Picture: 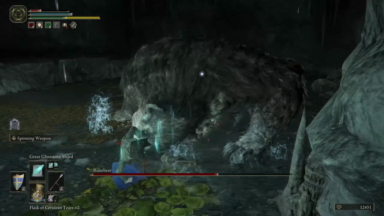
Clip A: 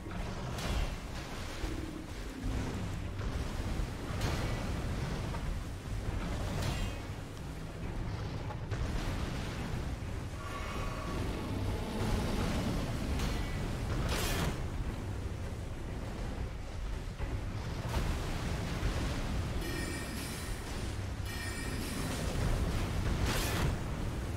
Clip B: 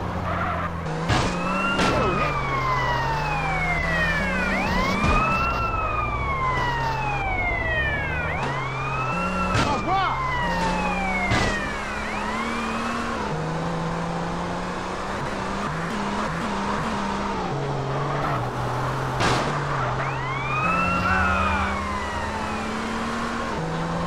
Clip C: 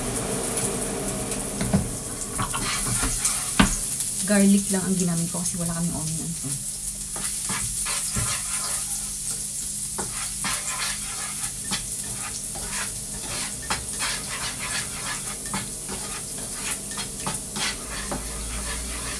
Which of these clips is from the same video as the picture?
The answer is A